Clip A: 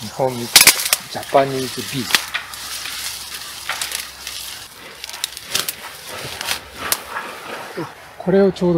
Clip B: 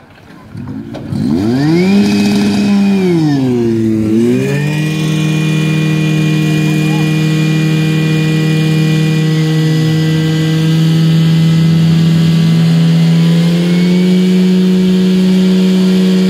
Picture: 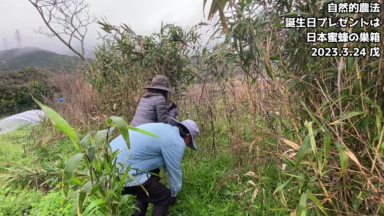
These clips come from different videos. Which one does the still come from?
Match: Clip A